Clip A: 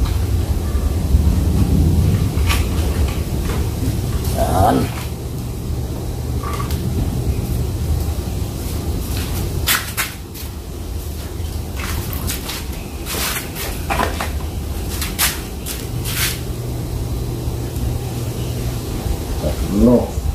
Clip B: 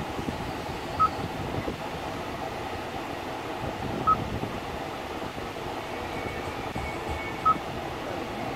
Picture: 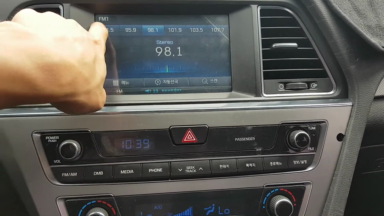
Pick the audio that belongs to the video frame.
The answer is B